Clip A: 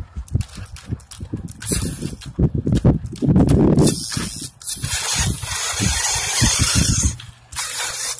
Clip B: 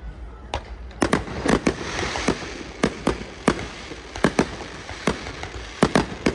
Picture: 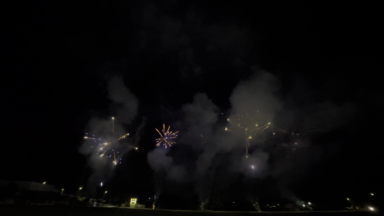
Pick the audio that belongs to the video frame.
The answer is B